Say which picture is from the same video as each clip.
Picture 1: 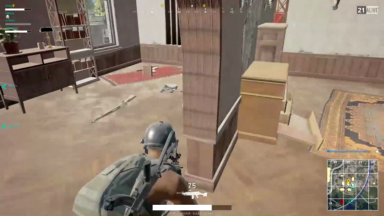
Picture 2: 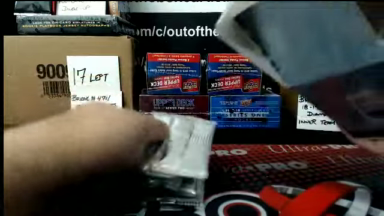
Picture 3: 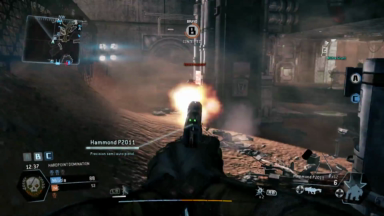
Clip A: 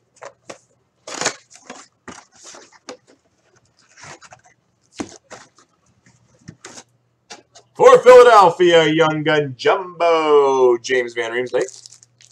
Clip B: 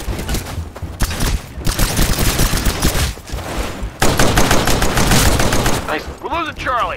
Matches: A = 2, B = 3